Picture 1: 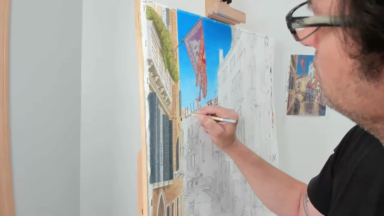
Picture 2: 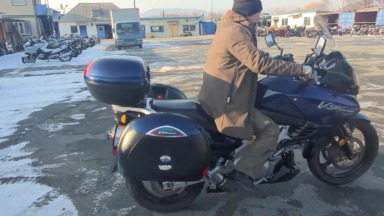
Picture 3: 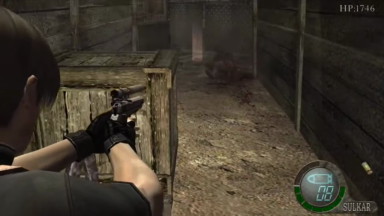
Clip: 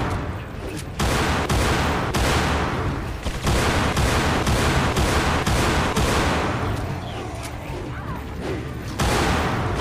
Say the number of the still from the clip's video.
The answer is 3